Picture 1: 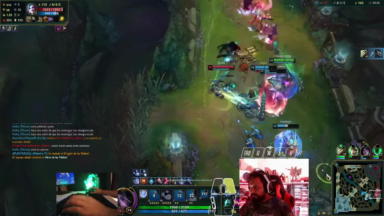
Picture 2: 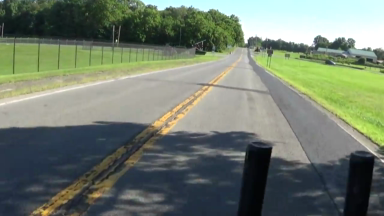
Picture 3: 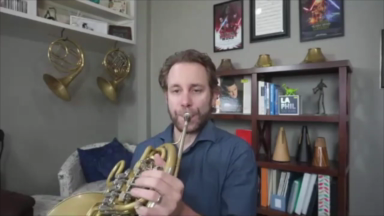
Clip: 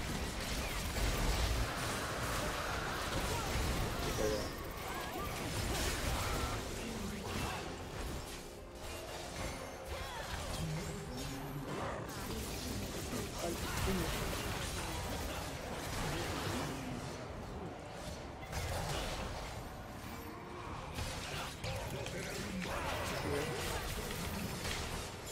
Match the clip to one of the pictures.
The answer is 1